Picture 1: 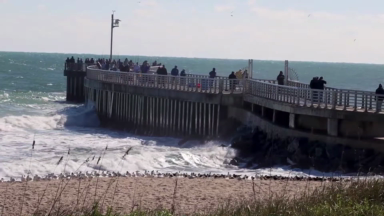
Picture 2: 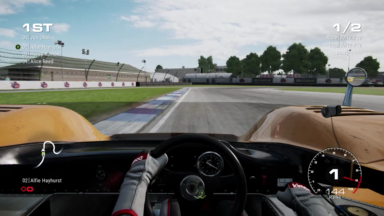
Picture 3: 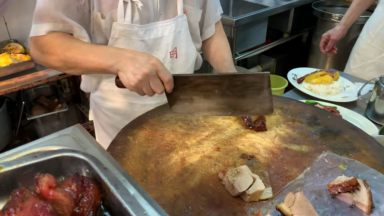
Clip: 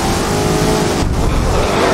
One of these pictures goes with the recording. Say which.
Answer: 2